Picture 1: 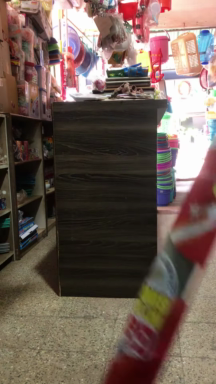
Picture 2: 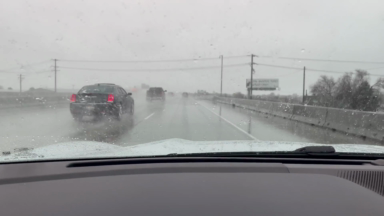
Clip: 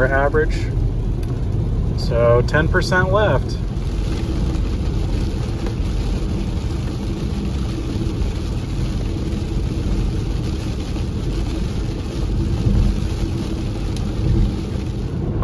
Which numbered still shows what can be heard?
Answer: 2